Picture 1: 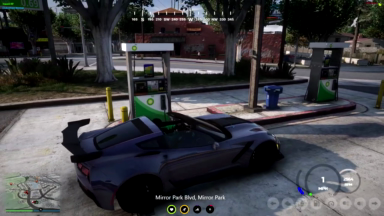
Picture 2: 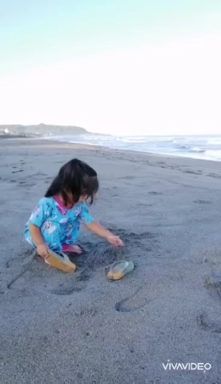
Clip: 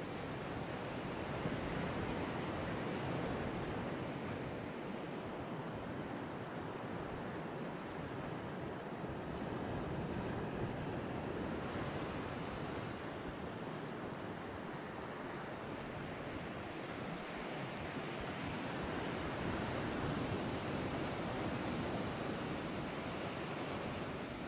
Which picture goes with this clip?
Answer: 2